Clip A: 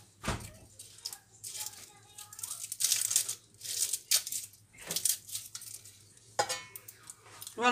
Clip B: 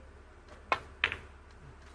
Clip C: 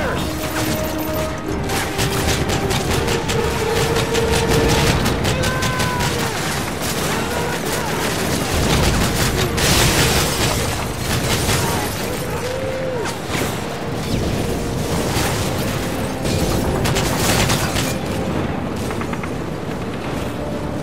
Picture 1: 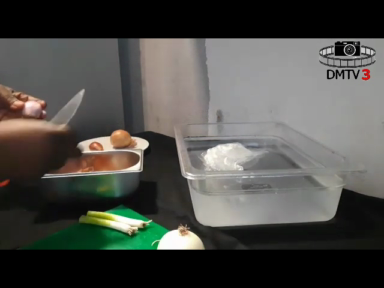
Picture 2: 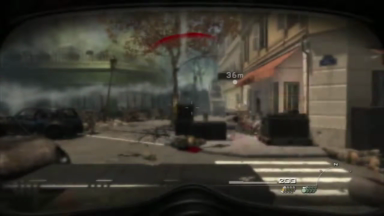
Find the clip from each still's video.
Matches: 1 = A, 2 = C